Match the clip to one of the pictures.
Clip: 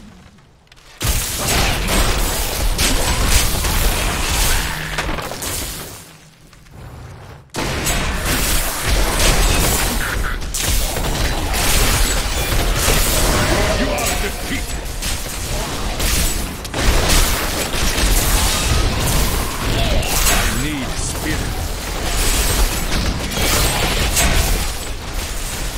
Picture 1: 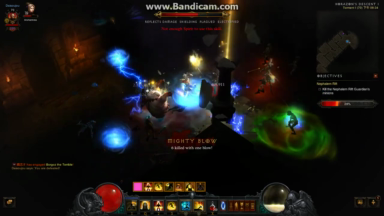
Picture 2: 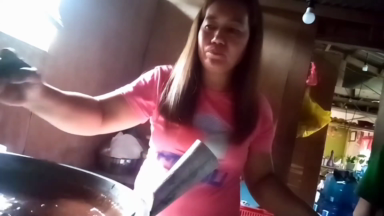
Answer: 1